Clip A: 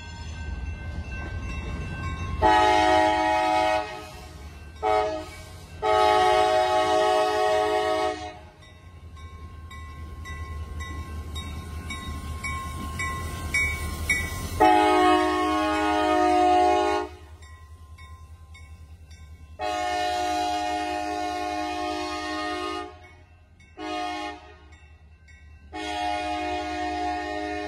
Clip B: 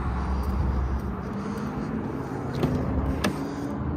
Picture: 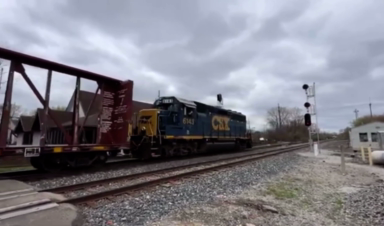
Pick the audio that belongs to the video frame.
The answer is A